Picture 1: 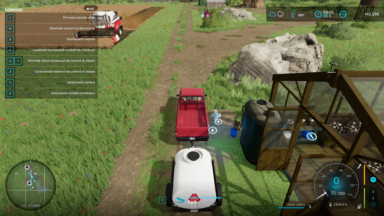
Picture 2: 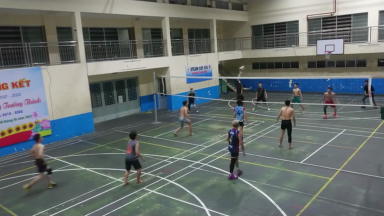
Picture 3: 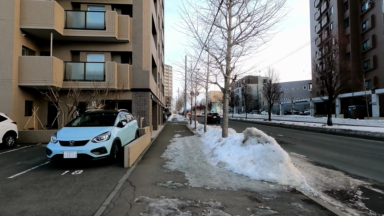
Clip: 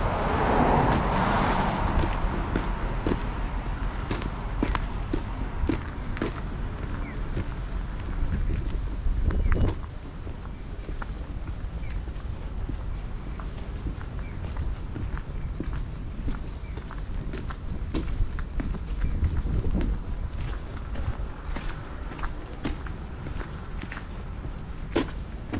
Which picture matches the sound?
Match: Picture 3